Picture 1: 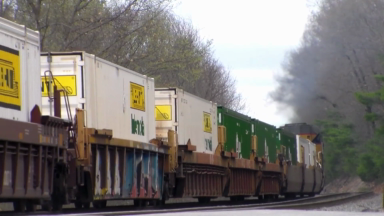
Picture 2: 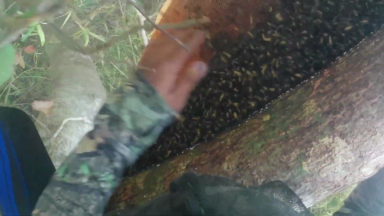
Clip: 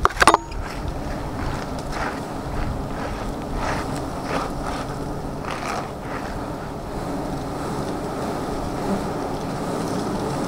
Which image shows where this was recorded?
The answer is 2